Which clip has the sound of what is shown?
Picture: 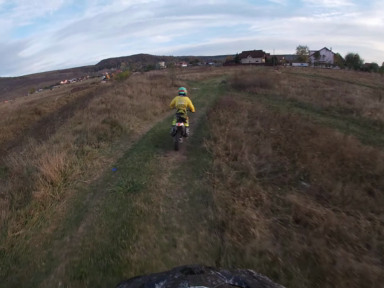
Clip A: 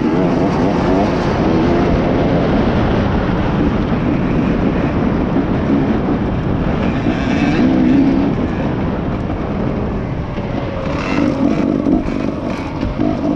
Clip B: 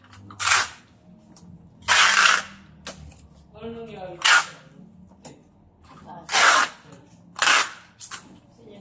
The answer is A